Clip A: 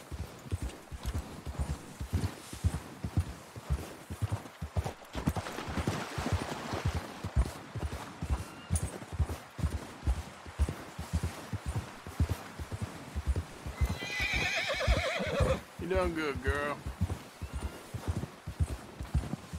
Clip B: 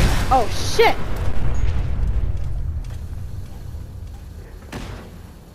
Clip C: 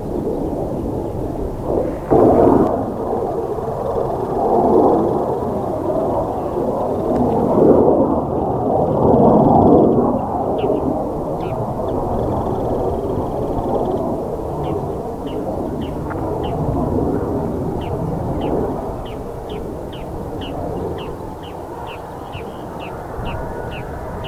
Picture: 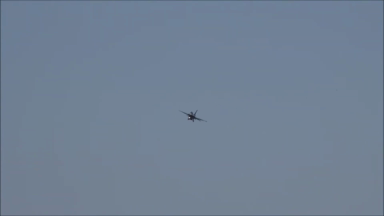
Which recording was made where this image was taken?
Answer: C